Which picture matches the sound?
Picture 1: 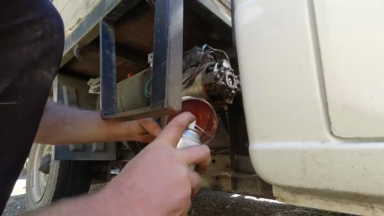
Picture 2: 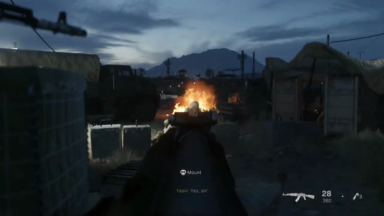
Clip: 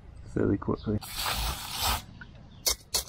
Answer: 1